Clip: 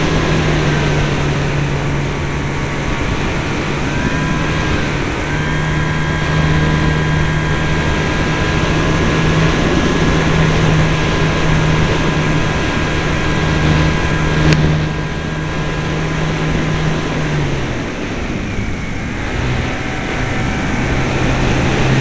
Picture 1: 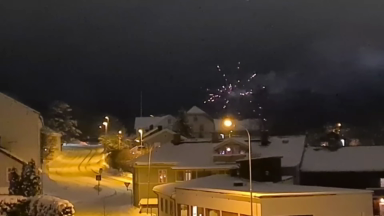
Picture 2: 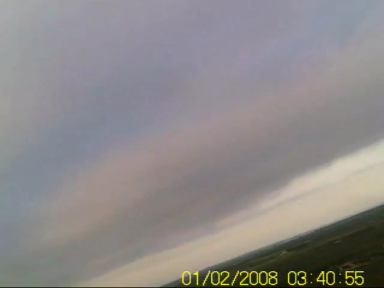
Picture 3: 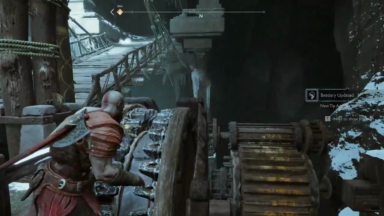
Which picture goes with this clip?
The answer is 2